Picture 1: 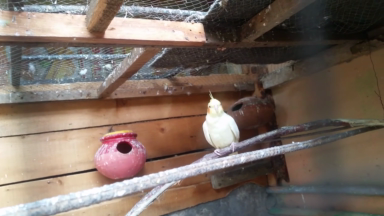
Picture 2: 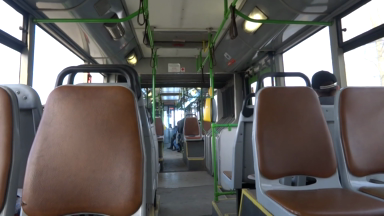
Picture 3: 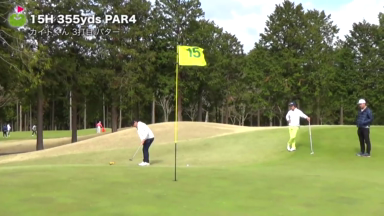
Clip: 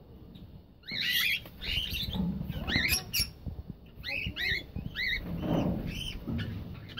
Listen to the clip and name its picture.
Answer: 1